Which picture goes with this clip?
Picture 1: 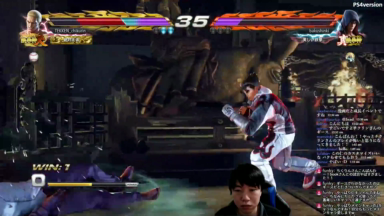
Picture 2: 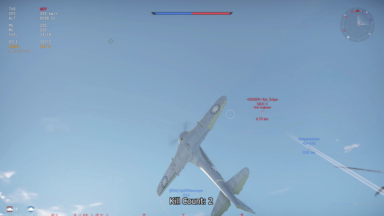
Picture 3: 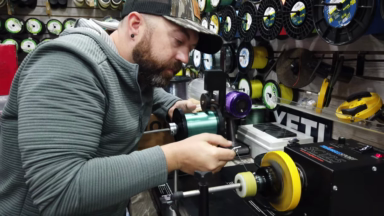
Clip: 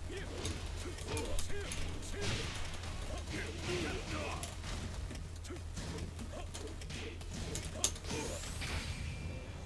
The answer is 1